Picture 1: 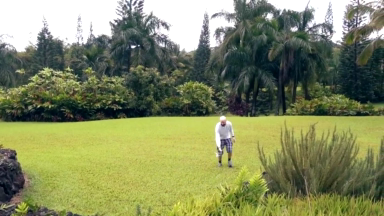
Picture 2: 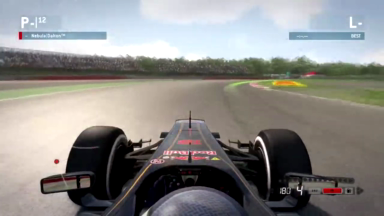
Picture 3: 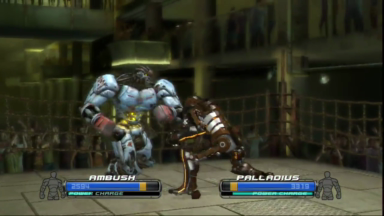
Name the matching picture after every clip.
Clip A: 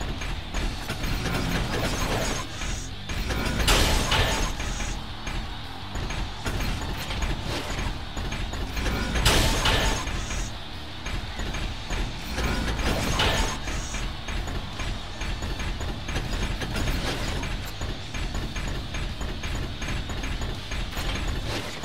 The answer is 3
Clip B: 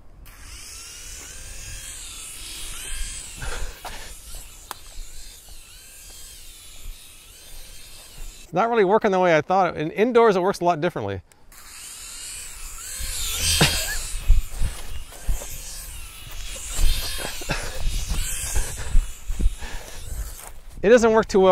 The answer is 1